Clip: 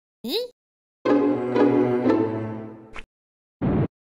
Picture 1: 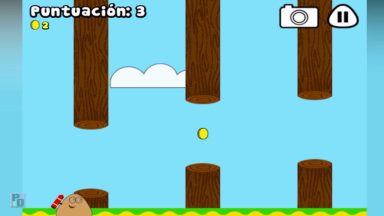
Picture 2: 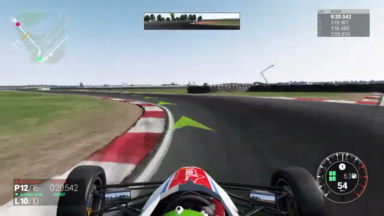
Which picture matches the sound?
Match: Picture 1